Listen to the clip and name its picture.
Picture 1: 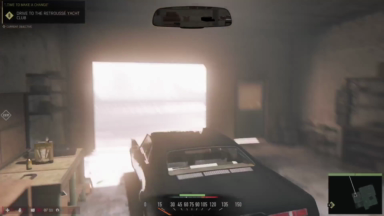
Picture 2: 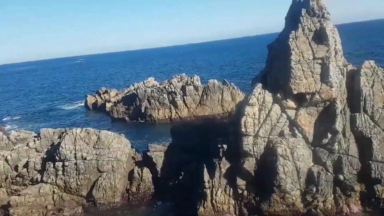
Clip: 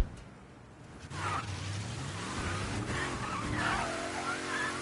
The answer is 1